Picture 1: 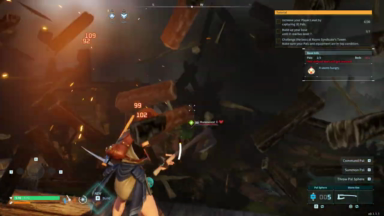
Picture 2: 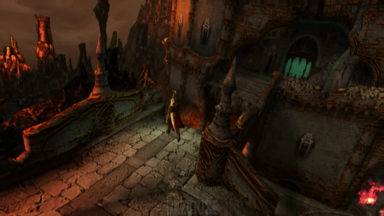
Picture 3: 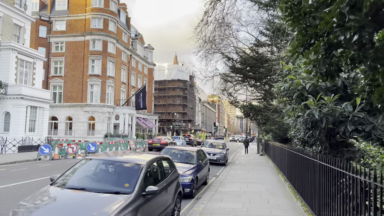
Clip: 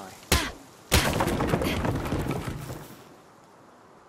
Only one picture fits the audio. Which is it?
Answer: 1